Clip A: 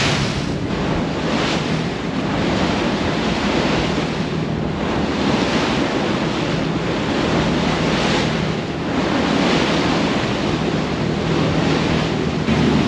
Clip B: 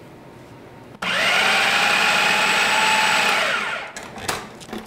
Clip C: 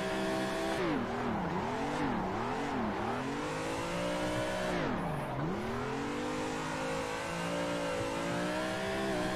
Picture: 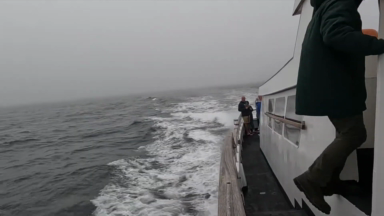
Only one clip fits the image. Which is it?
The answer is A